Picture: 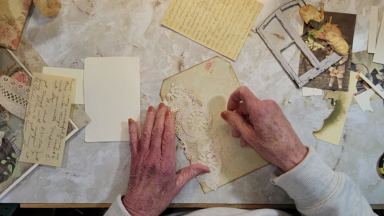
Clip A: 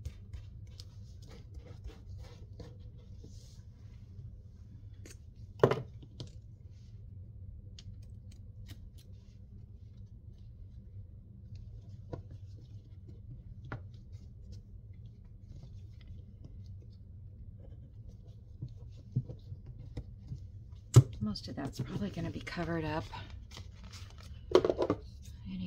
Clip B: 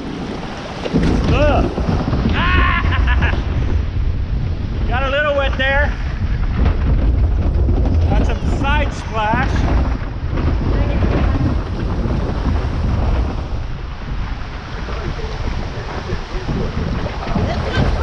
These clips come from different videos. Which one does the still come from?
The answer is A